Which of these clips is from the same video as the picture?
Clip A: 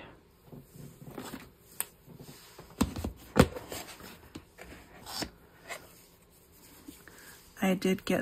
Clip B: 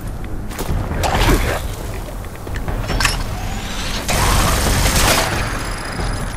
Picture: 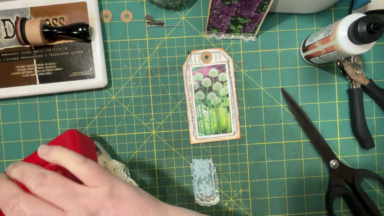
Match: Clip A